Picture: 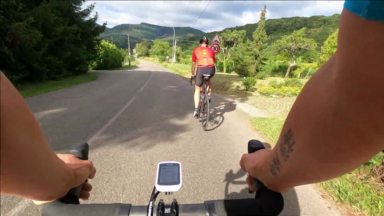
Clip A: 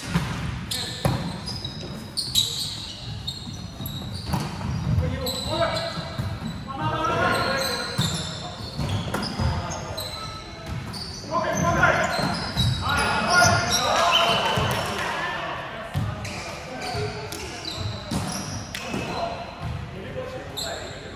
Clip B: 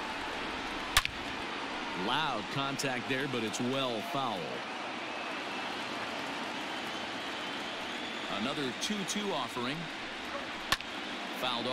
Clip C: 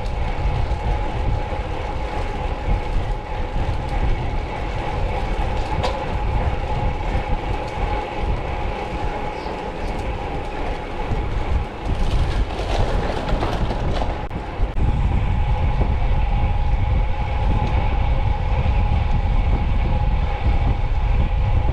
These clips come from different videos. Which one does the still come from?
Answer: C